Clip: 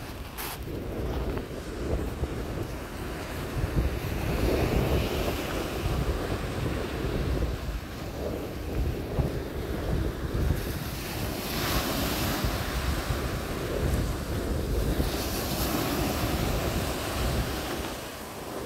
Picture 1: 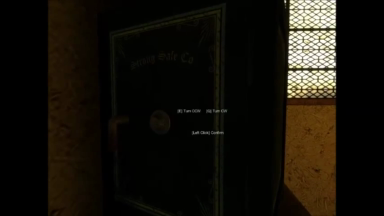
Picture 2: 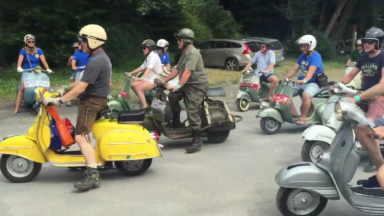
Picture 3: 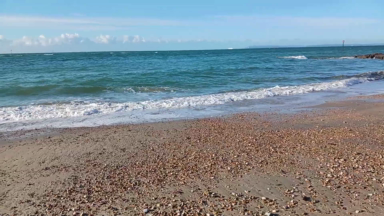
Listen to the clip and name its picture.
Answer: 3